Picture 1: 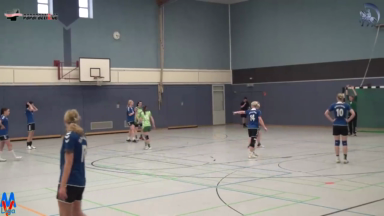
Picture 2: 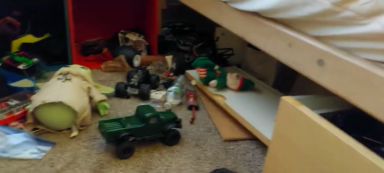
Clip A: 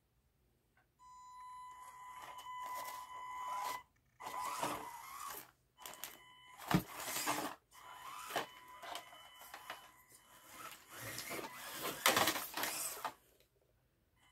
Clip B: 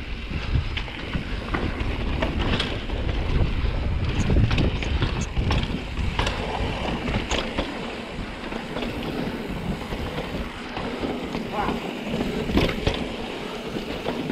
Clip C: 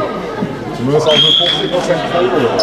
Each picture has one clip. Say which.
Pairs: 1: C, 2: A